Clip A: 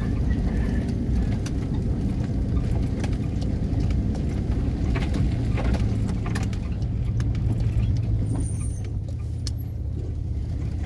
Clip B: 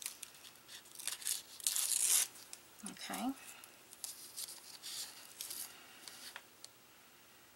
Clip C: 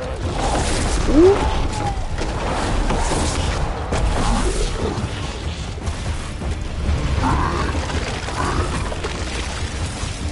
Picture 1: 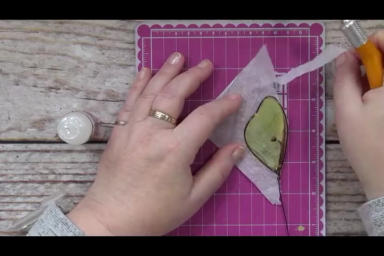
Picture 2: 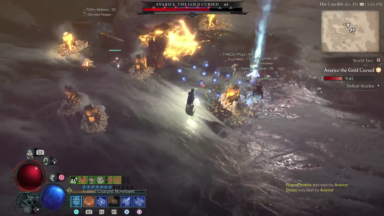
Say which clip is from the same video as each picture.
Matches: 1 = B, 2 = C